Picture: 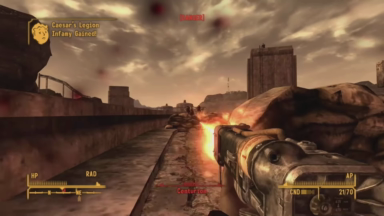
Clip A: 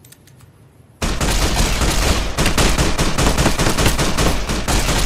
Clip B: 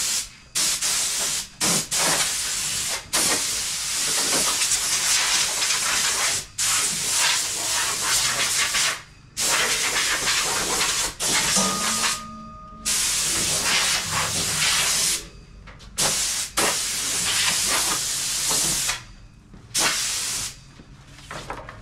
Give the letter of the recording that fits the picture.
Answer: A